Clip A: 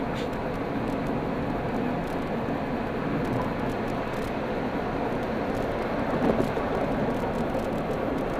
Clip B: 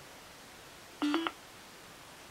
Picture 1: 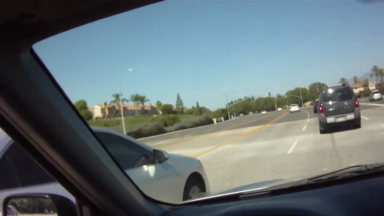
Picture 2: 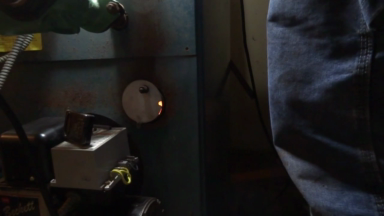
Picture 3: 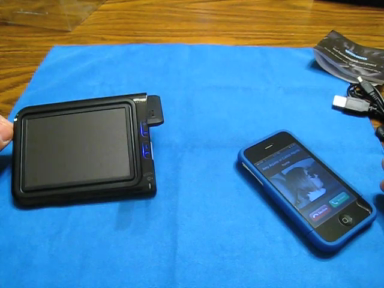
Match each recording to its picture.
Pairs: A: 1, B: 3